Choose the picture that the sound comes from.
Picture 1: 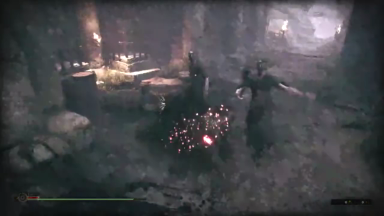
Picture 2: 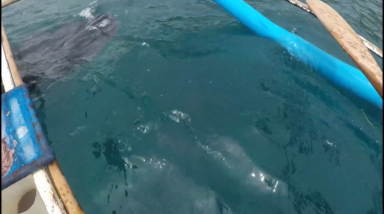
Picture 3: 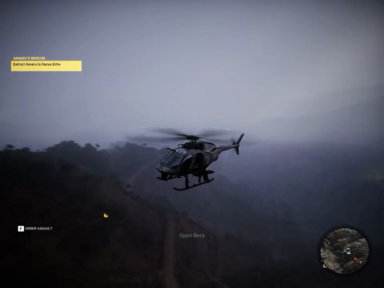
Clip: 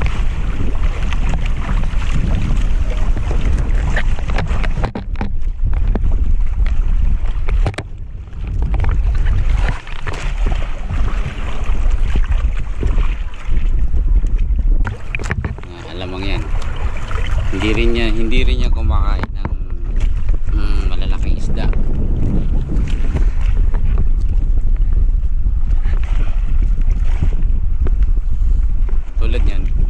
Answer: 2